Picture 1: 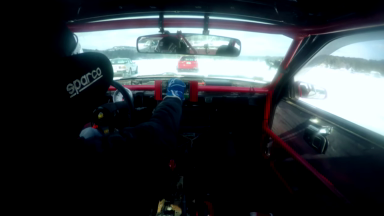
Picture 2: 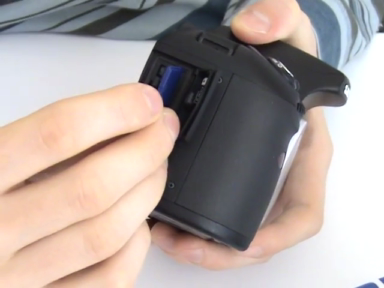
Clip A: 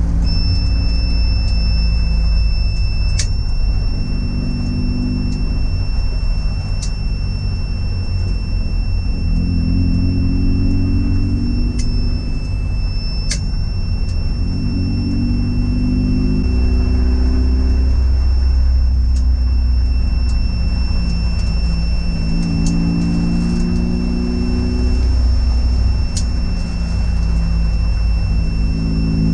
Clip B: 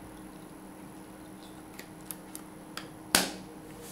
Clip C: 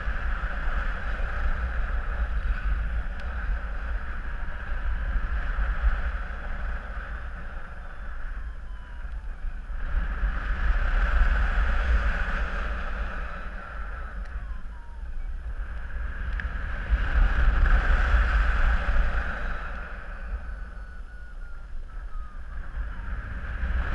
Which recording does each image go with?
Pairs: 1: A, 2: B